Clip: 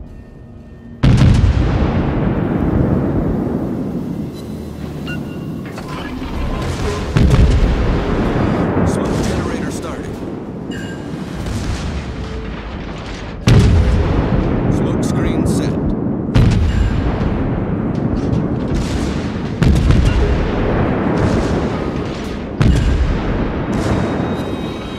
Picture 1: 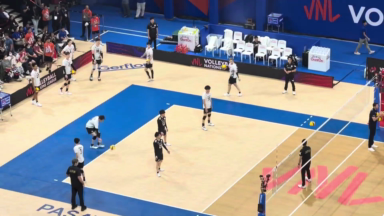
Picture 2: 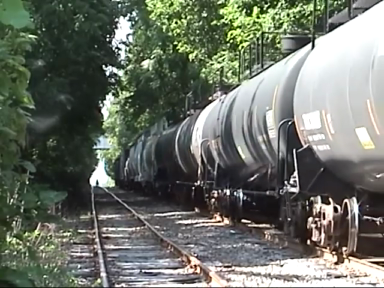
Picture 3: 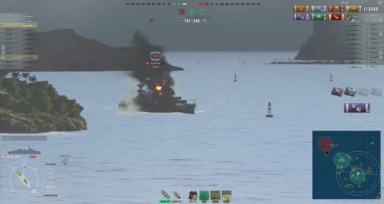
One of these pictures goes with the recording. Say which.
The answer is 3